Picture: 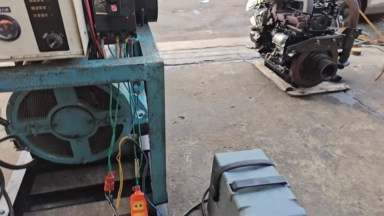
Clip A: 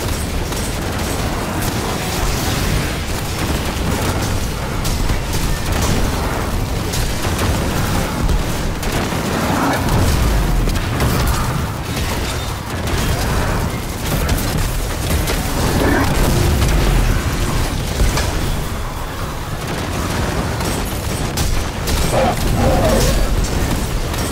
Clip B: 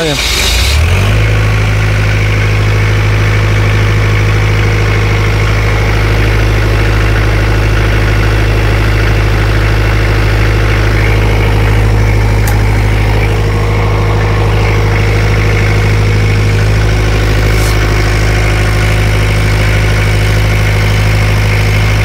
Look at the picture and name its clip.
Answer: B